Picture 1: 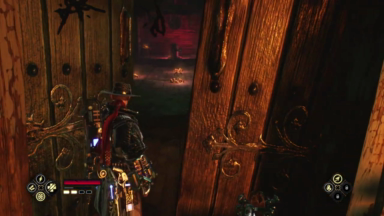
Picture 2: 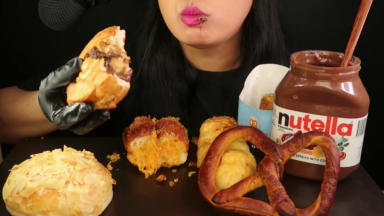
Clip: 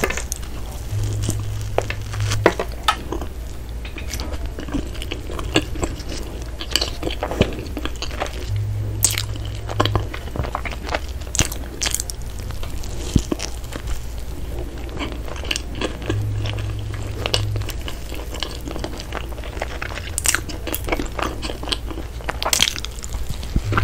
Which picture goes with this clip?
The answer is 2